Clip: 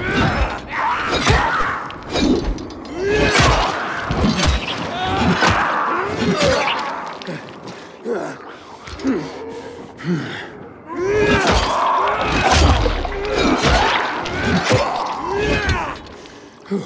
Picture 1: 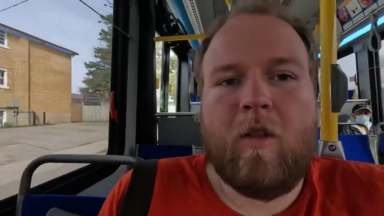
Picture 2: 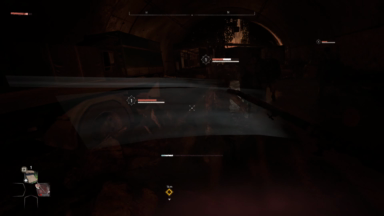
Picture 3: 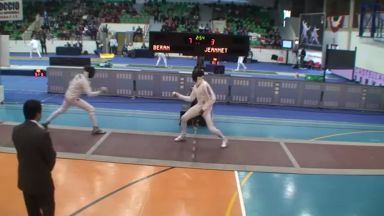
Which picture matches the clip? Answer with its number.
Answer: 2